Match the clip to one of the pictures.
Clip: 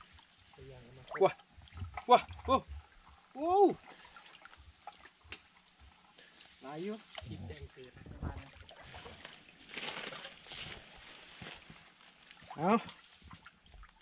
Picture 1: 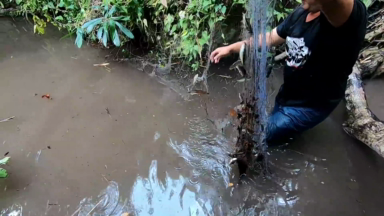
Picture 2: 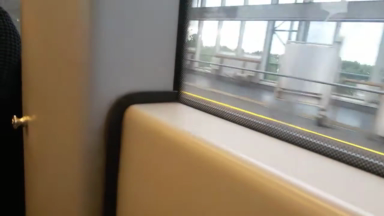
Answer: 1